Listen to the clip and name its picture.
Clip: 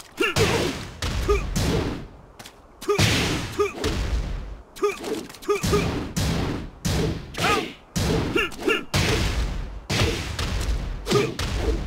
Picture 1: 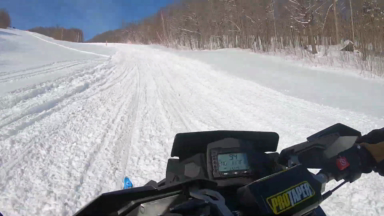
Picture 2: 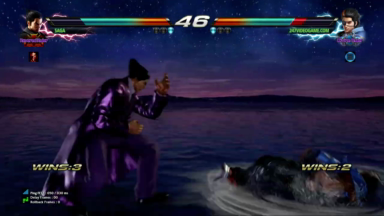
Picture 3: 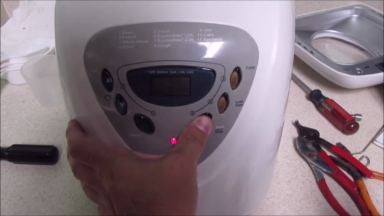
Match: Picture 2